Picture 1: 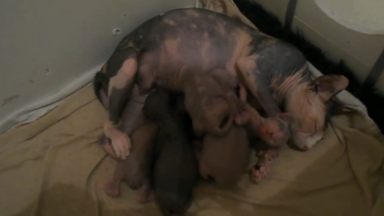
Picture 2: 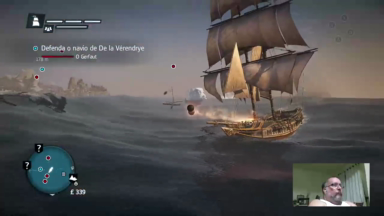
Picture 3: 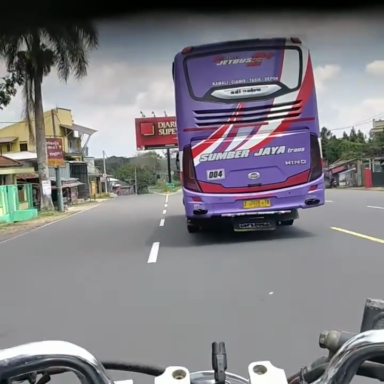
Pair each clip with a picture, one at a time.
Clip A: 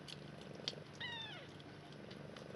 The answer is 1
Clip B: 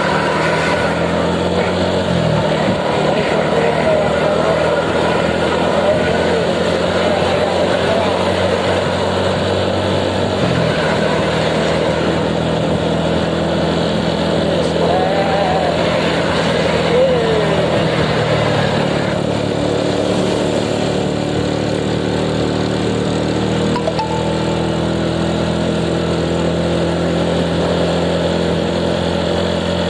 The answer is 3